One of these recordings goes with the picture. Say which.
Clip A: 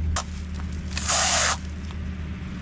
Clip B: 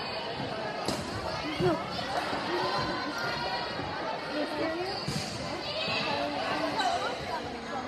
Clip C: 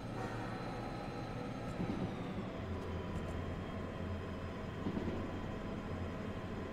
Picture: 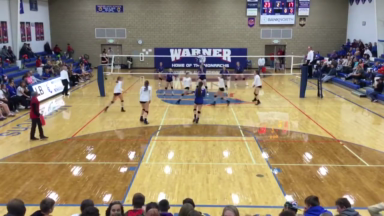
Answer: B